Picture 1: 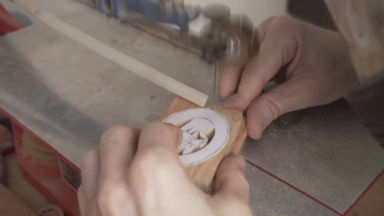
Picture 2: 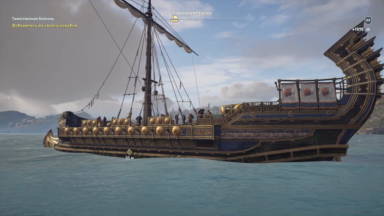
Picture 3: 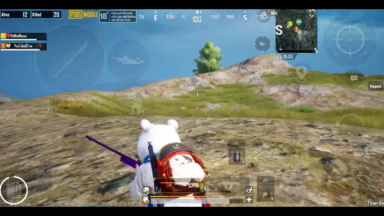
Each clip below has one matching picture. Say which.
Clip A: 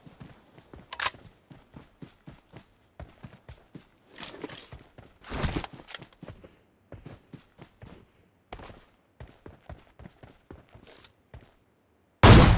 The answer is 3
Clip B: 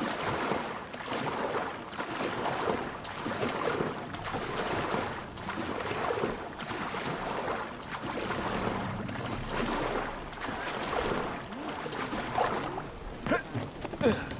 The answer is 2